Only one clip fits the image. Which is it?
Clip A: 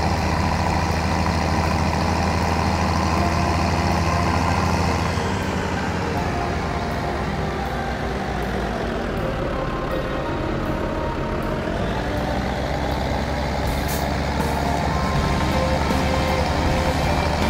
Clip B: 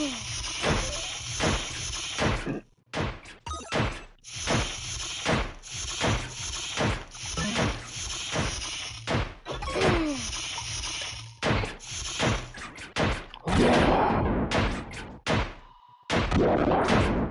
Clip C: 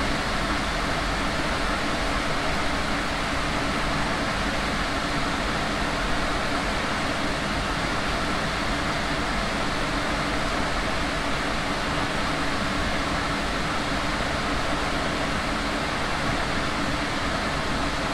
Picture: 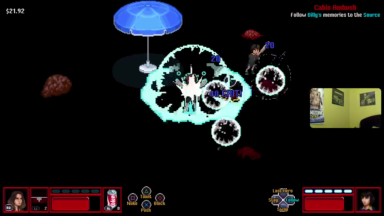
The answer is B